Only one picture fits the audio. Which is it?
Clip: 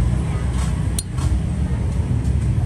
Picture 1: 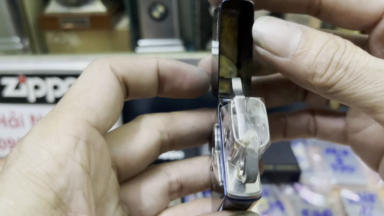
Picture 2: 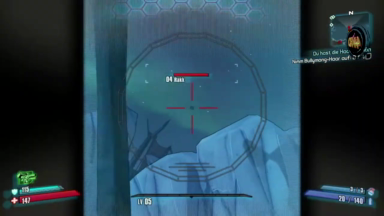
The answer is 1